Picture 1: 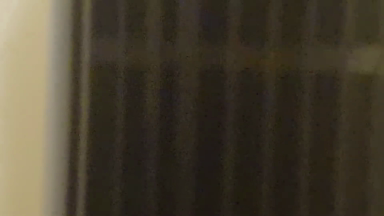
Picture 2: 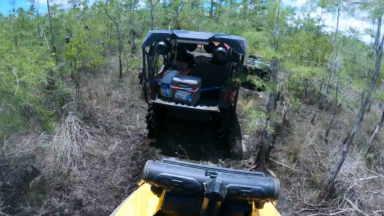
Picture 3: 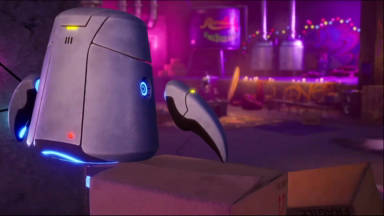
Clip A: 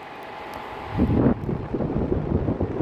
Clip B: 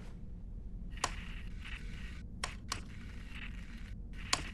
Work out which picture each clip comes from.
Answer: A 1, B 3